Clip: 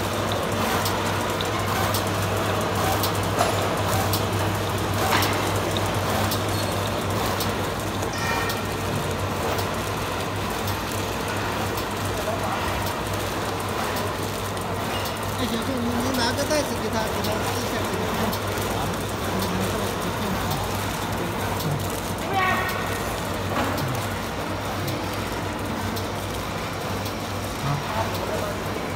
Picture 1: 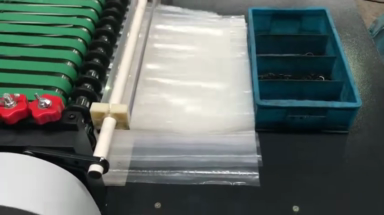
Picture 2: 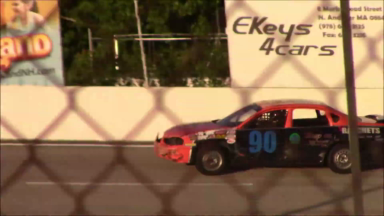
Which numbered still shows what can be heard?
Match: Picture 1